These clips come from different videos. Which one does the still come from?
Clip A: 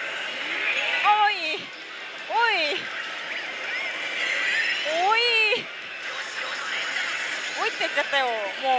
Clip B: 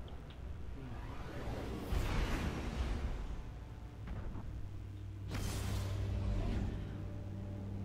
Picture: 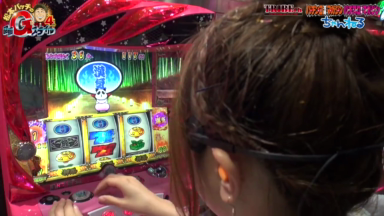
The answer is A